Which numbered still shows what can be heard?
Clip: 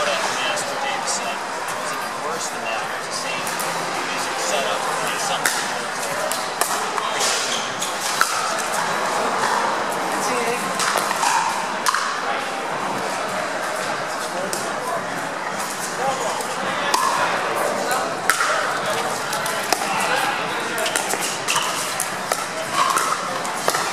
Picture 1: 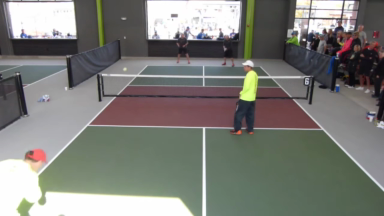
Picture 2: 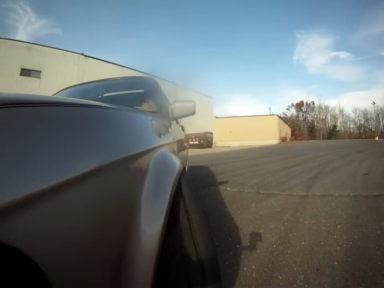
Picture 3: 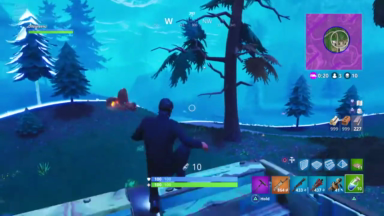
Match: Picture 1